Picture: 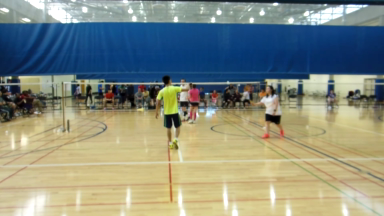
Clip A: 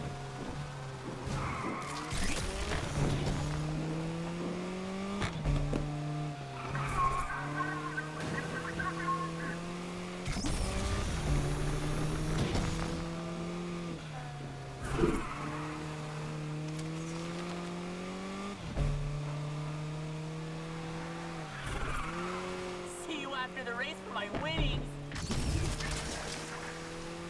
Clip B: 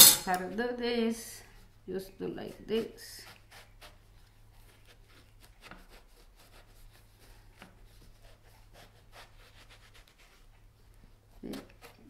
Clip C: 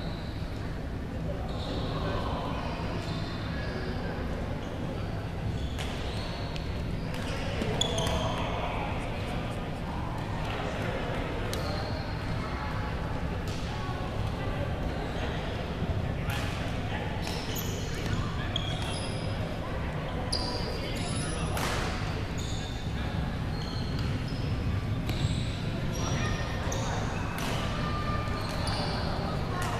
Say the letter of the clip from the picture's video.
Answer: C